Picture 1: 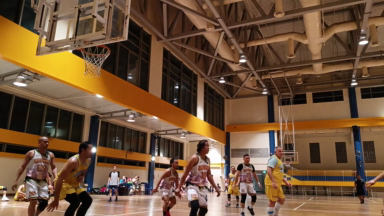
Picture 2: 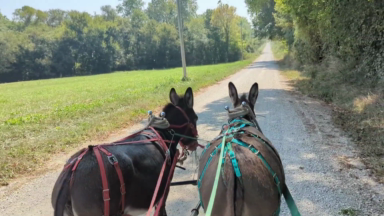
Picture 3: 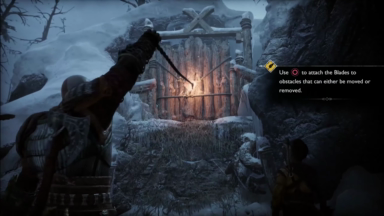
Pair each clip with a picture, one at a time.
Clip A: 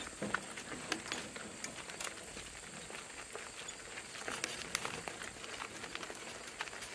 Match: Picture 2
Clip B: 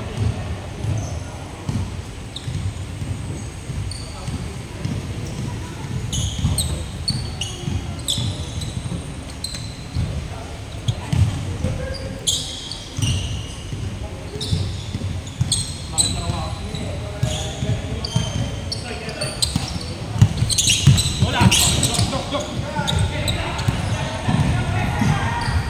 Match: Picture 1